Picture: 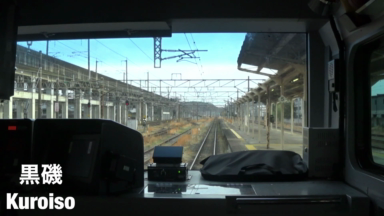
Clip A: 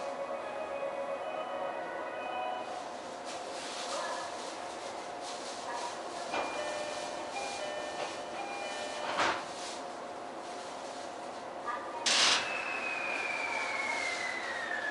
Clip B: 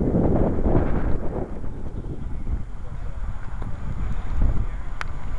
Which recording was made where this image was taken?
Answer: A